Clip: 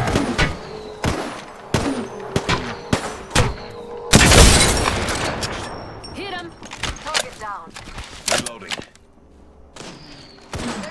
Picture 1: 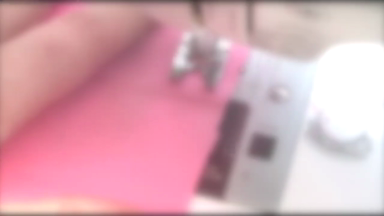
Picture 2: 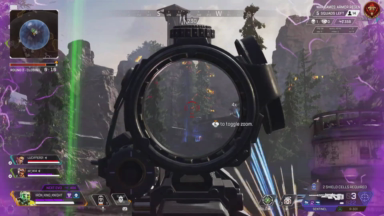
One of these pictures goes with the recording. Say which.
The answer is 2